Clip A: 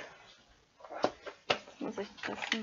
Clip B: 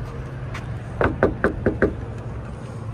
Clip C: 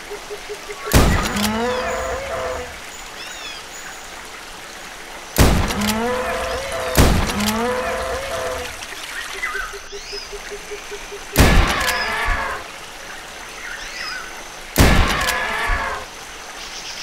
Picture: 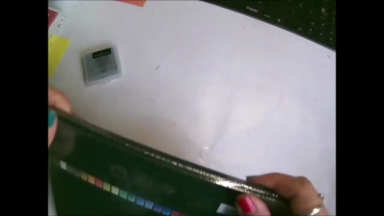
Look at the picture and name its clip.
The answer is A